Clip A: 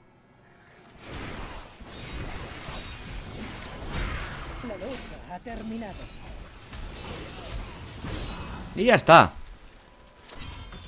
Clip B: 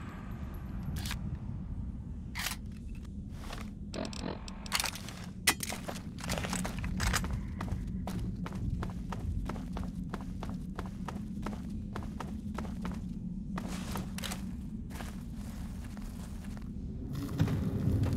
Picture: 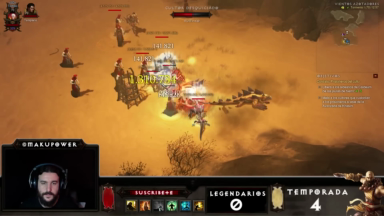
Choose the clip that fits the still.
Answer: A